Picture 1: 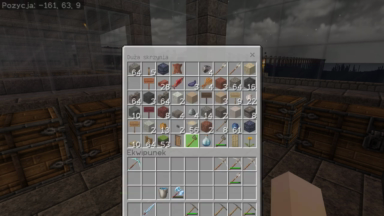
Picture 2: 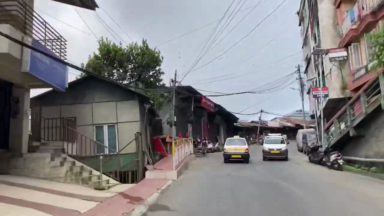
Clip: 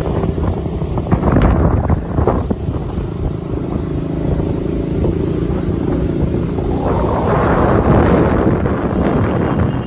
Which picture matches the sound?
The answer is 2